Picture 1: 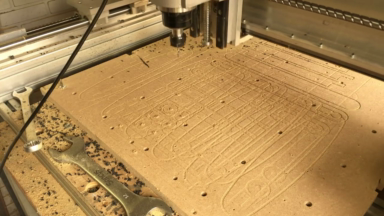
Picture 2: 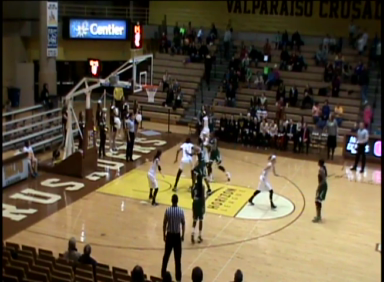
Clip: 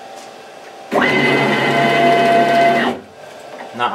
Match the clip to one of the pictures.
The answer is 1